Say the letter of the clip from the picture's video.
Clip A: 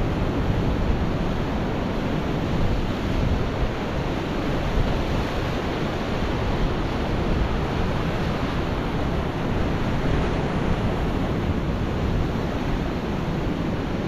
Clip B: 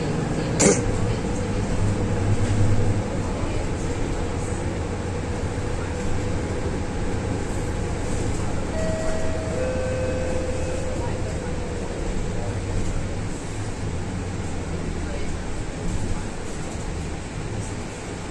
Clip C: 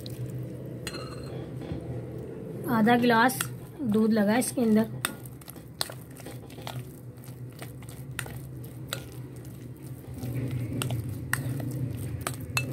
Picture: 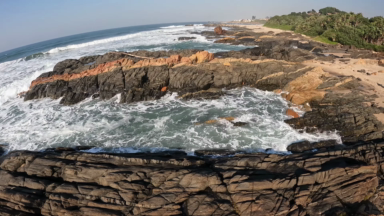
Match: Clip A